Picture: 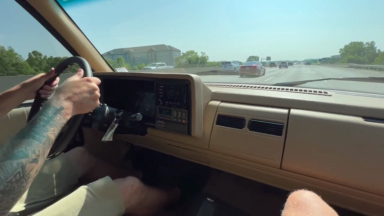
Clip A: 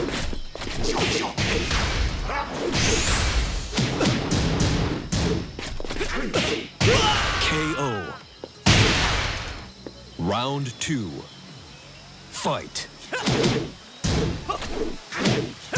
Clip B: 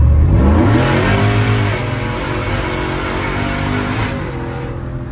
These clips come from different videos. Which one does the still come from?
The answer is B